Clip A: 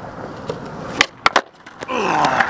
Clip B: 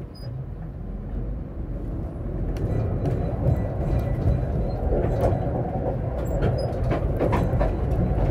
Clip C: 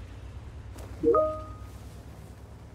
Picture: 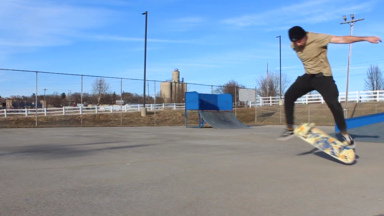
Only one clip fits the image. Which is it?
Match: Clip A